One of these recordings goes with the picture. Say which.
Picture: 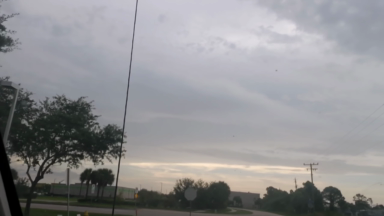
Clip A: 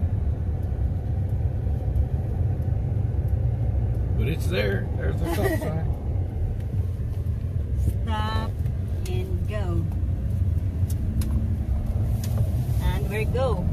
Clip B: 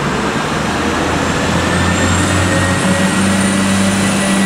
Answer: A